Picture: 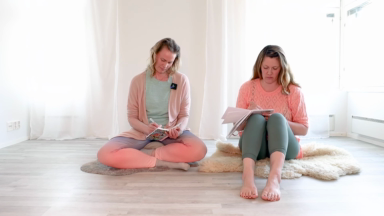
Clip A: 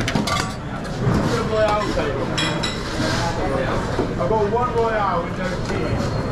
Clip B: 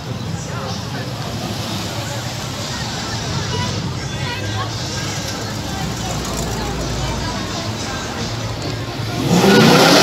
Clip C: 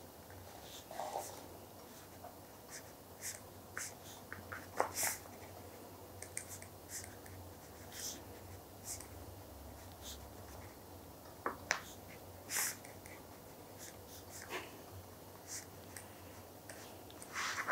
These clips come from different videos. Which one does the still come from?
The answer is C